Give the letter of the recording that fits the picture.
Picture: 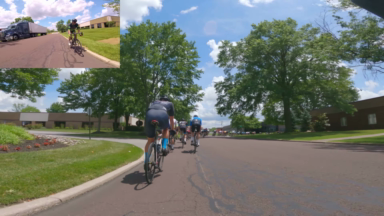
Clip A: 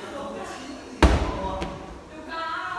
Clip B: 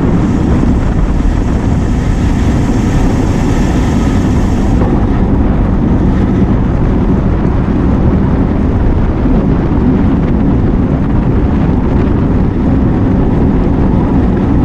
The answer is B